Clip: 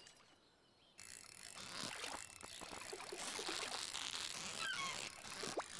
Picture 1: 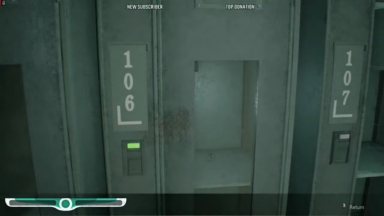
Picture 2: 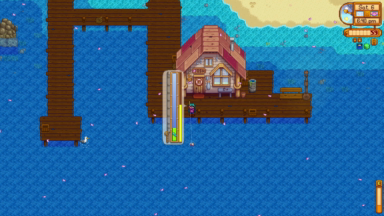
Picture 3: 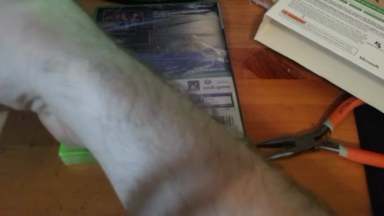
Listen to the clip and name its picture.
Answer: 2